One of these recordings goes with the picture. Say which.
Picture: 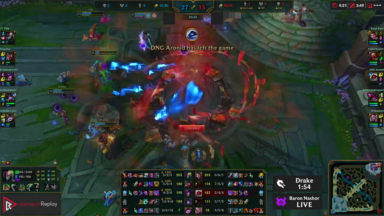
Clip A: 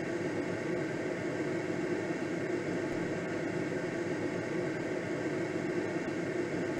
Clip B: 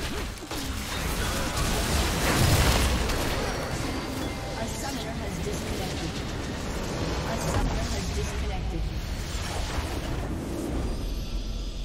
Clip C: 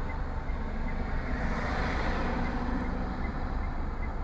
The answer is B